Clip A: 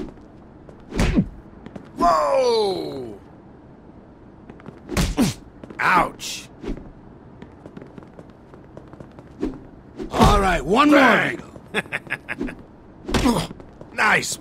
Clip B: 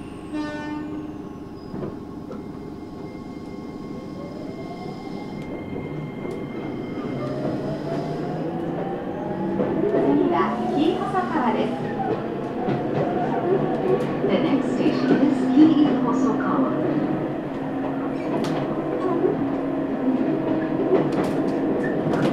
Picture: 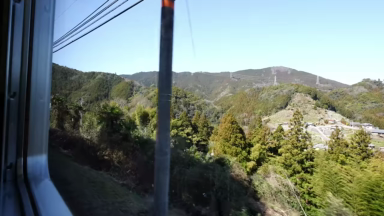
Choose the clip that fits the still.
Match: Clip B